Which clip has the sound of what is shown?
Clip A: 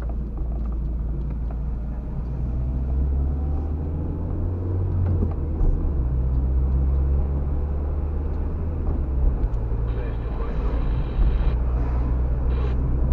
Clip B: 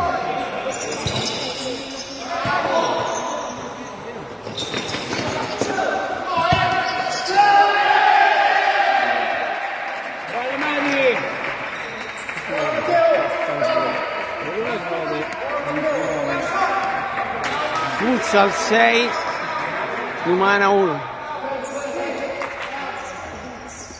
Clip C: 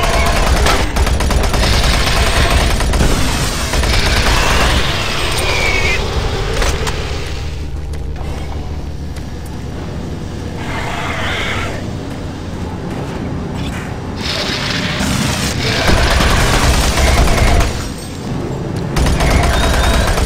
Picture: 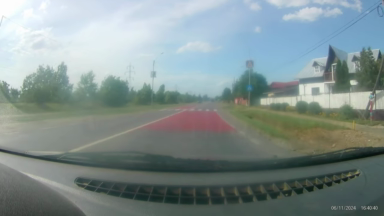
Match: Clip A